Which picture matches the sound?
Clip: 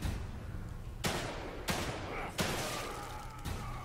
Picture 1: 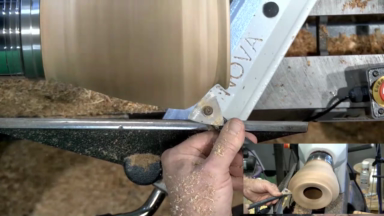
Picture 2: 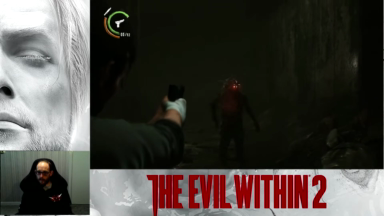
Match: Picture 2